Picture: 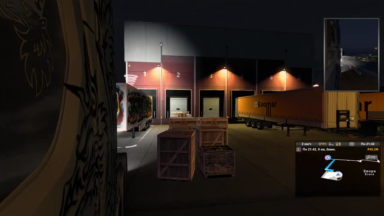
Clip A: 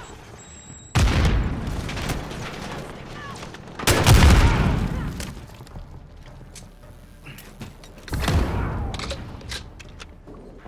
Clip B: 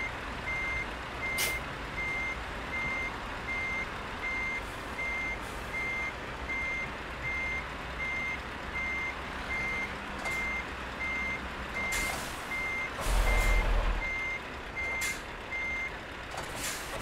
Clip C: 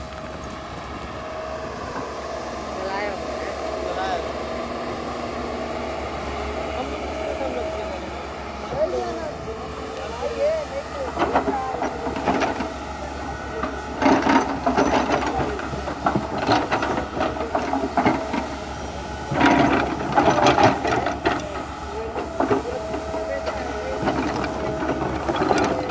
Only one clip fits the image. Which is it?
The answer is B